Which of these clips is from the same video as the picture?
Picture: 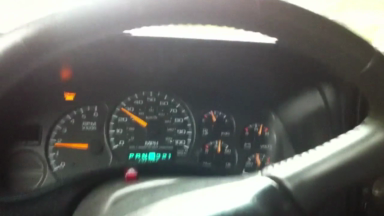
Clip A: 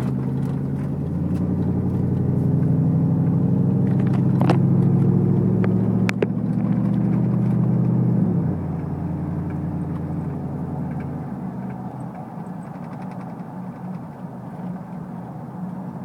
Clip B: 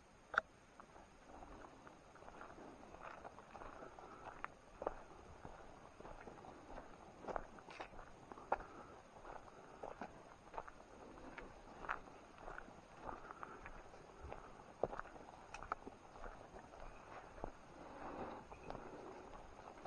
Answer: A